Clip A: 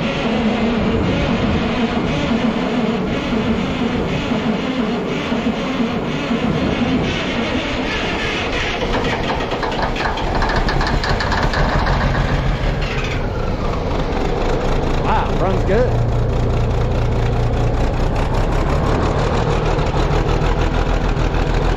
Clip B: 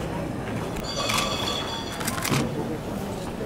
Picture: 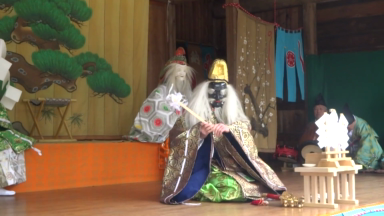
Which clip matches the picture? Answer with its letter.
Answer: B